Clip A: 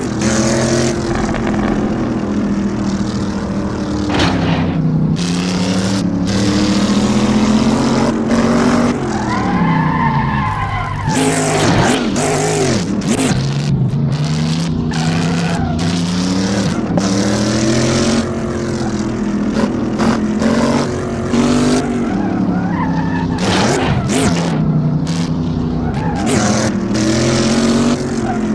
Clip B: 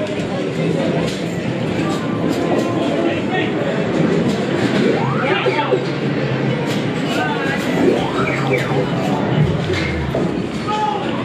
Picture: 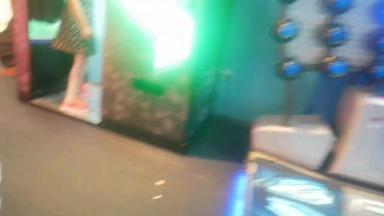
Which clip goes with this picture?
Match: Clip B